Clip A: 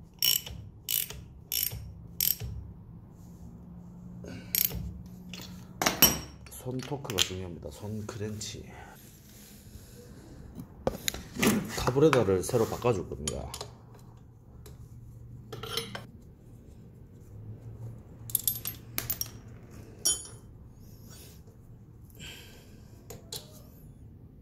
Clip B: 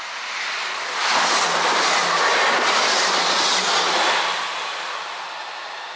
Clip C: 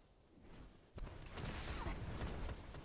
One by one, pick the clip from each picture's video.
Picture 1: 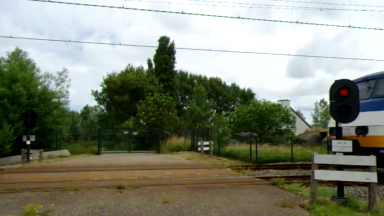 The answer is B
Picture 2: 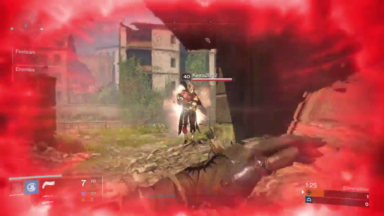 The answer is C